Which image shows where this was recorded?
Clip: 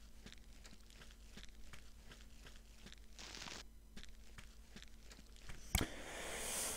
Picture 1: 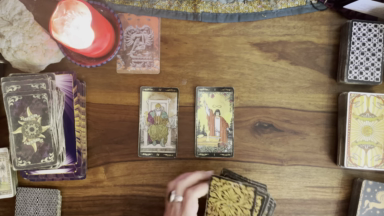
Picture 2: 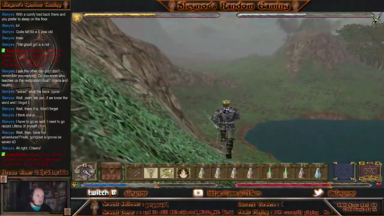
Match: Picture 2